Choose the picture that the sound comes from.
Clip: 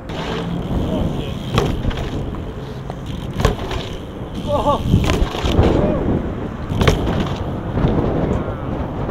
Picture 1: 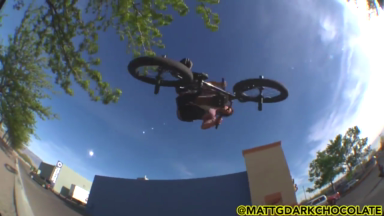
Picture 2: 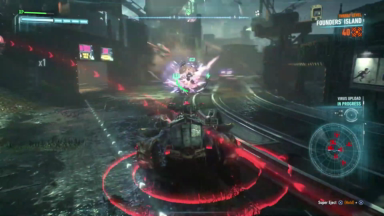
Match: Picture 1